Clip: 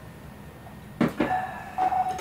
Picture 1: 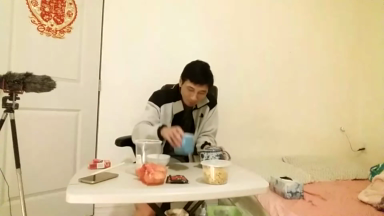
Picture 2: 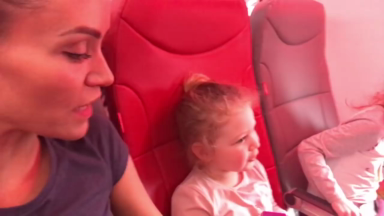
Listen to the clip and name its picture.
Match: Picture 1